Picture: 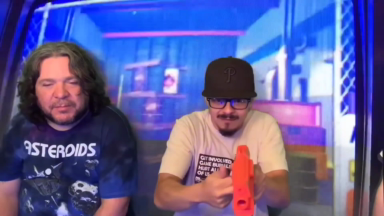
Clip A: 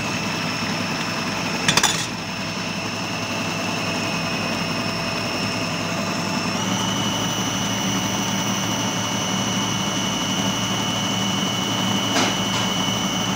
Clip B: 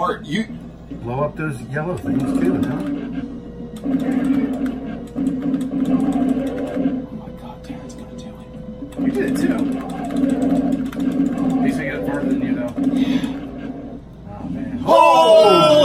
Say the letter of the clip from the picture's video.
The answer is B